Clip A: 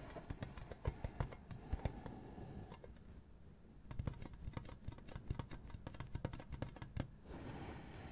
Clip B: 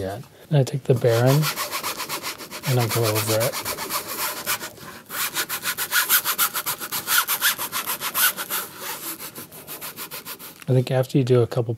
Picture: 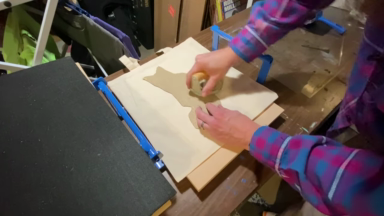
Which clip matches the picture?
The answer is B